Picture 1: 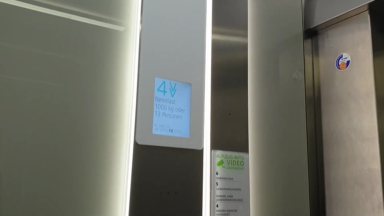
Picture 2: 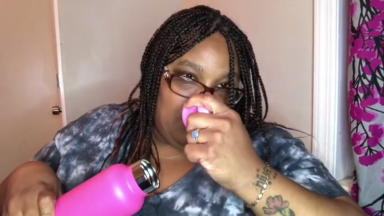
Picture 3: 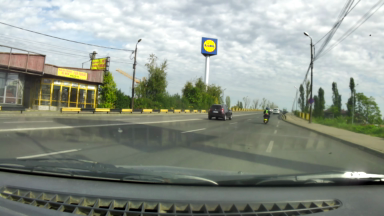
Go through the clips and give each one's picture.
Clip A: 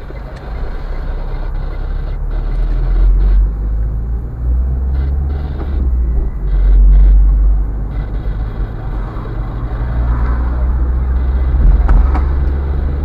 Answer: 3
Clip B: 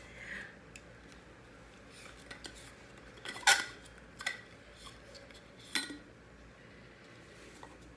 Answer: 2